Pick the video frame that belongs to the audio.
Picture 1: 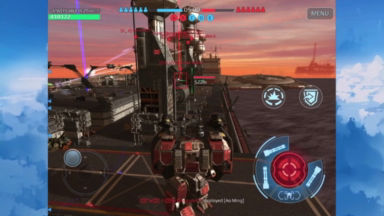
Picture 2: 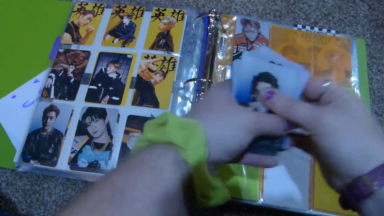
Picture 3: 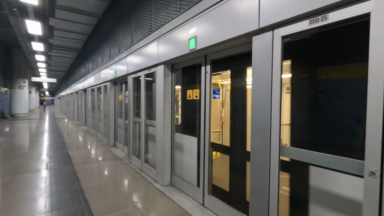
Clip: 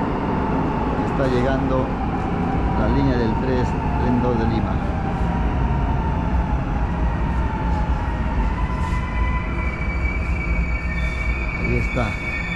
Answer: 3